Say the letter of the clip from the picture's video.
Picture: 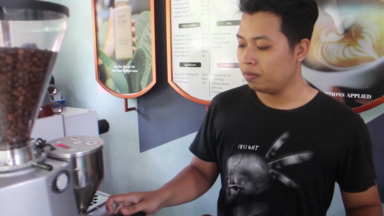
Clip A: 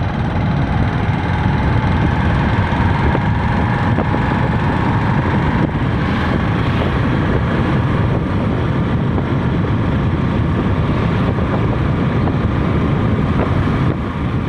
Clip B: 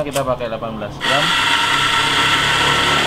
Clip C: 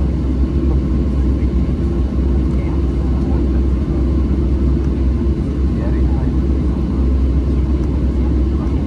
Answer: B